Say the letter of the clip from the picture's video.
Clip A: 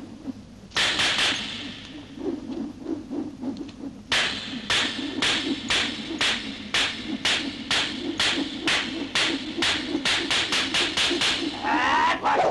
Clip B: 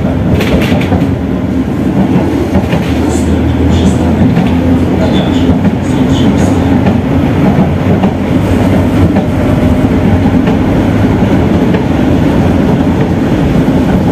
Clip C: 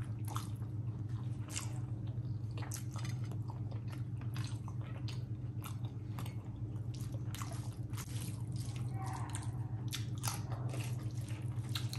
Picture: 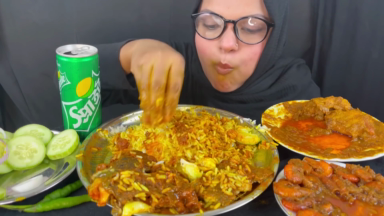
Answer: C